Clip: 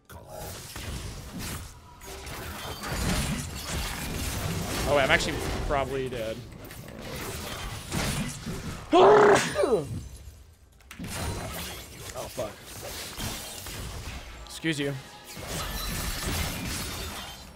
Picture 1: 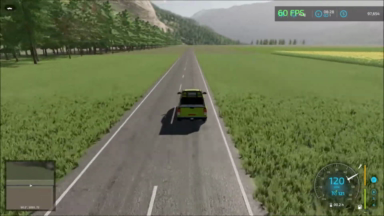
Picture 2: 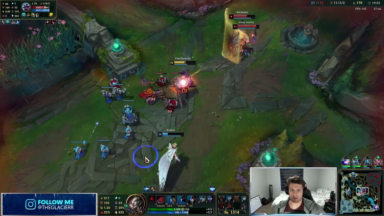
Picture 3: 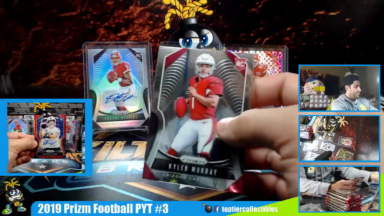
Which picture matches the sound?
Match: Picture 2